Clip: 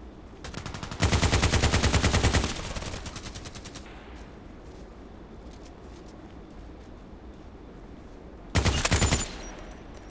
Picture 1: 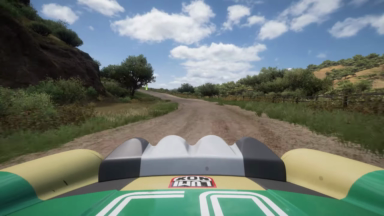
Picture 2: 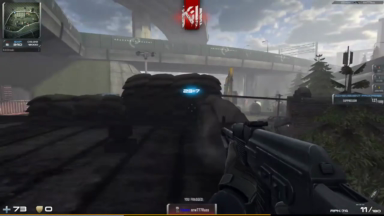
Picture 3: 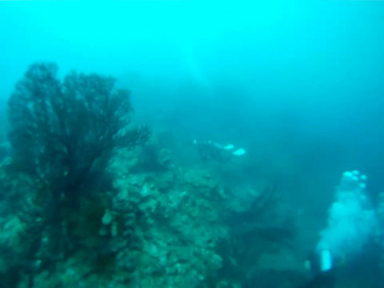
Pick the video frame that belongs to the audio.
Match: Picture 2